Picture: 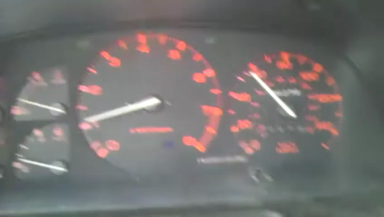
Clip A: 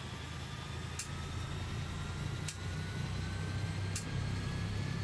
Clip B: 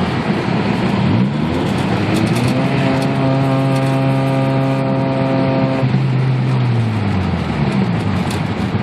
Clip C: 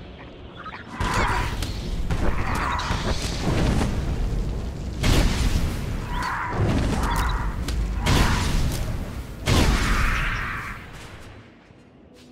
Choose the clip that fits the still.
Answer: B